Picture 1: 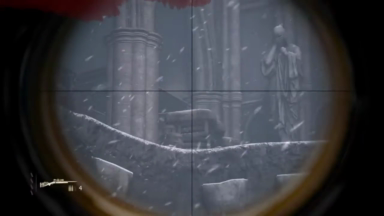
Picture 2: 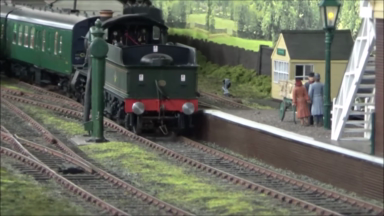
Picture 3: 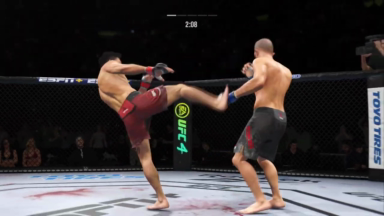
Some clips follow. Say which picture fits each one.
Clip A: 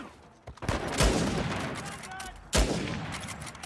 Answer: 1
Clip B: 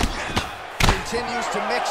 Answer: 3